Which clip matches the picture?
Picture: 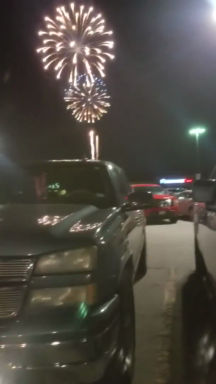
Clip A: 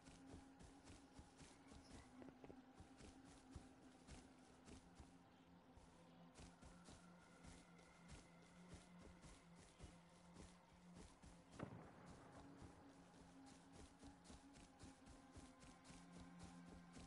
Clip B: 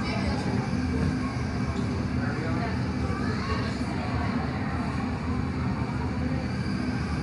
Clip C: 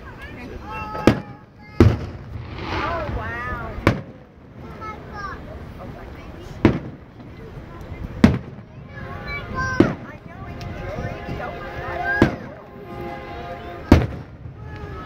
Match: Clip C